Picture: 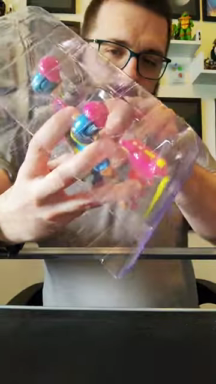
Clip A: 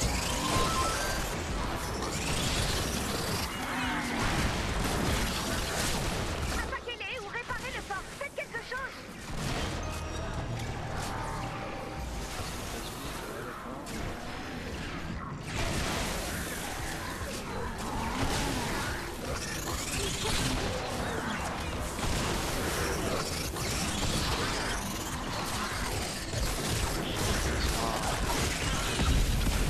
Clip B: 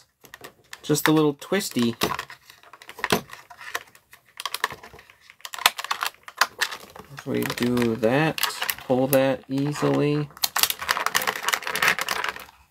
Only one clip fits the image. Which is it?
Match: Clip B